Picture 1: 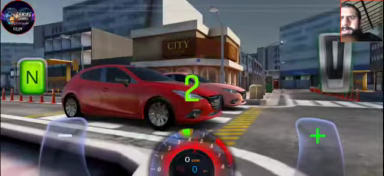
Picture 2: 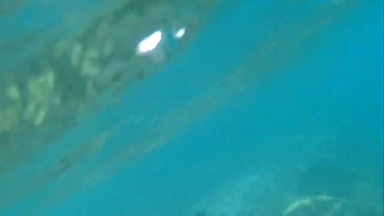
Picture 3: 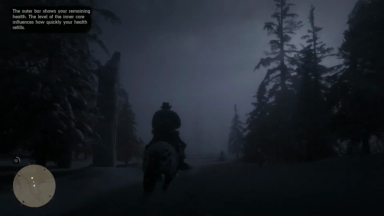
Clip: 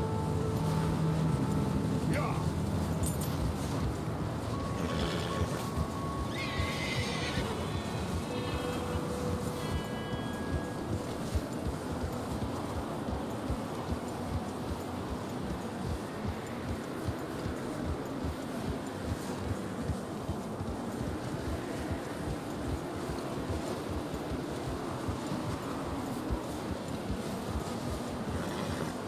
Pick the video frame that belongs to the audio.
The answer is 3